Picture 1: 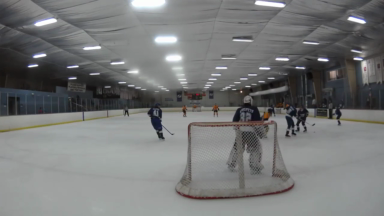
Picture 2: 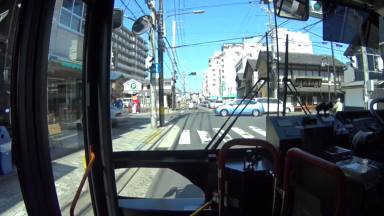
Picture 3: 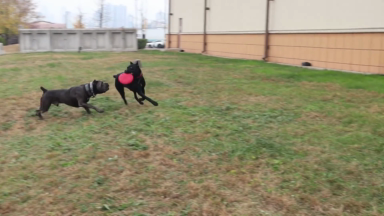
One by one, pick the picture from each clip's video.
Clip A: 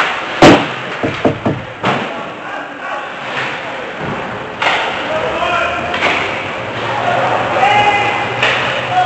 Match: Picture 1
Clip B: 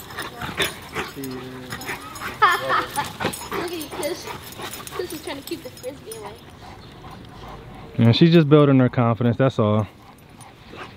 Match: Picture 3